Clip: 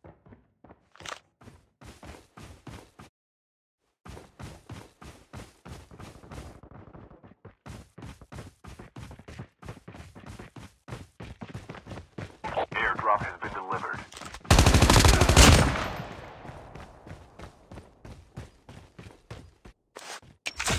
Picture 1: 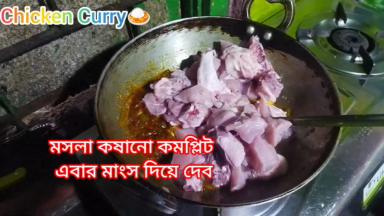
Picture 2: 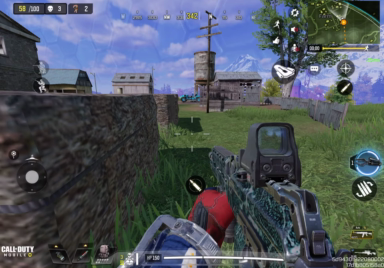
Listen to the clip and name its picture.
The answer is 2